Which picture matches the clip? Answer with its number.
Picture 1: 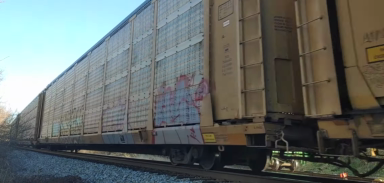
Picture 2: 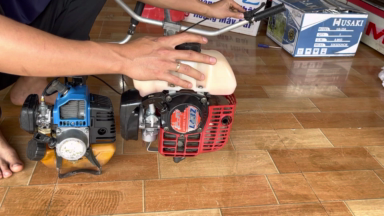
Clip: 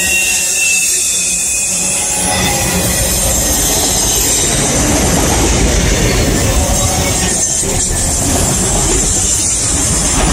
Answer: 1